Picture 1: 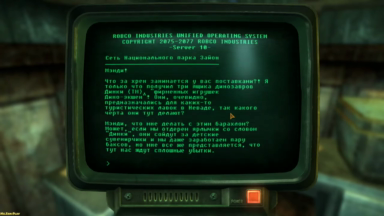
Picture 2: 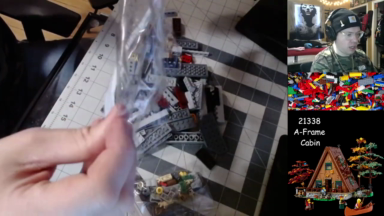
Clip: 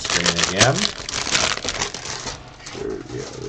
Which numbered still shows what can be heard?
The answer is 2